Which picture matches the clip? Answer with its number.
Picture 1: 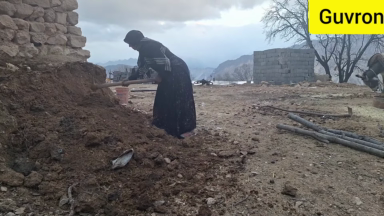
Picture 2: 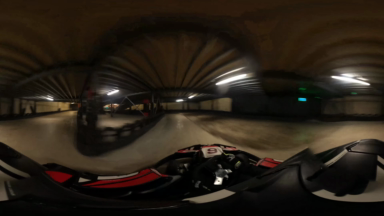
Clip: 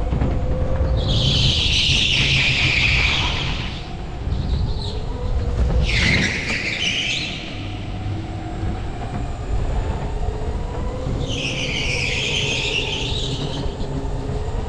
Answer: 2